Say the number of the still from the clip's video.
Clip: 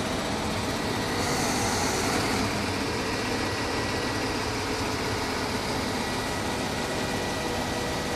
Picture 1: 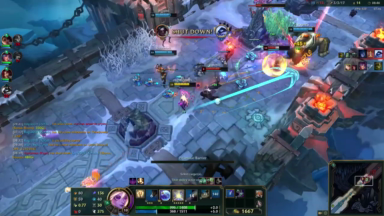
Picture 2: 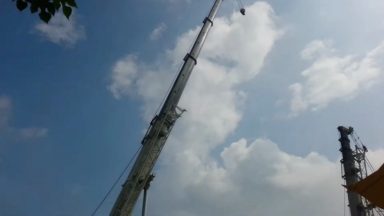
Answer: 2